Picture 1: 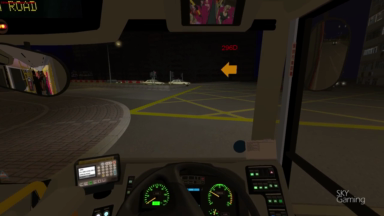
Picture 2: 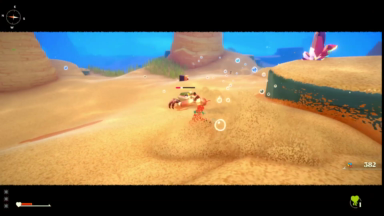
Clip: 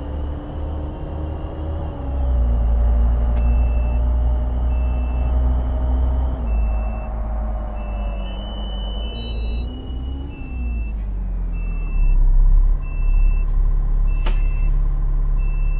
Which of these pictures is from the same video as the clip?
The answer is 1